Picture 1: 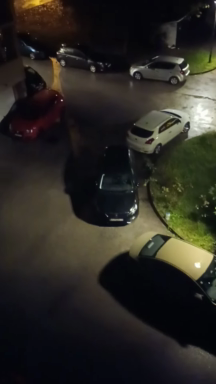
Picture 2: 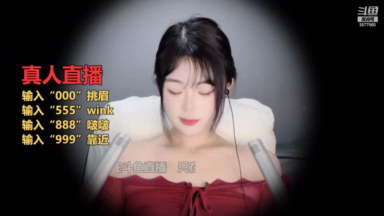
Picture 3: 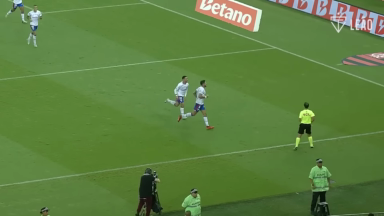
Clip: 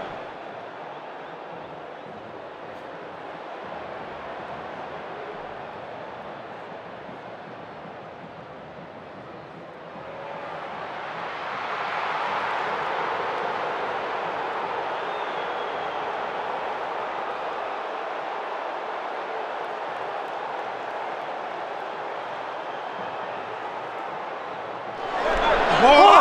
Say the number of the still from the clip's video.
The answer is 3